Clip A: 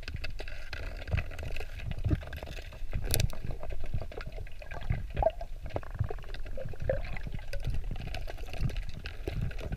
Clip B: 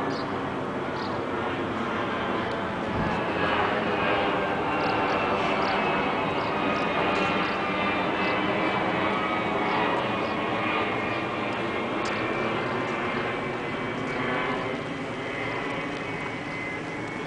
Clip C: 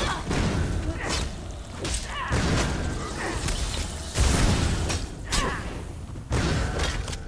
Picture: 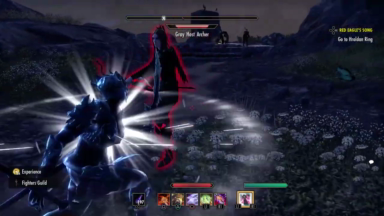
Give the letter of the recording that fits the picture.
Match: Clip C